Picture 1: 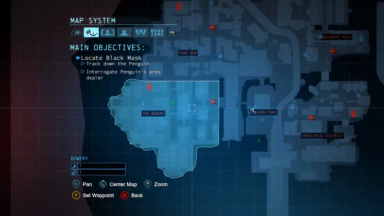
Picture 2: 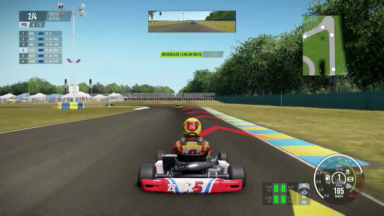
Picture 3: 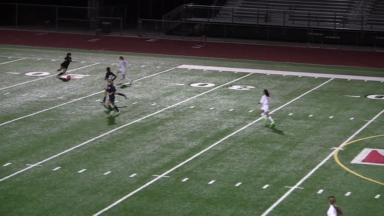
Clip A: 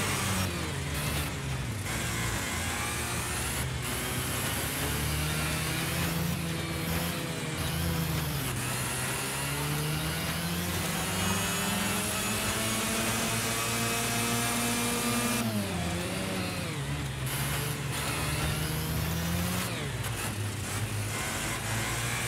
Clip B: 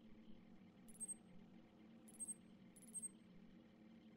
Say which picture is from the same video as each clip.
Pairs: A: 2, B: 1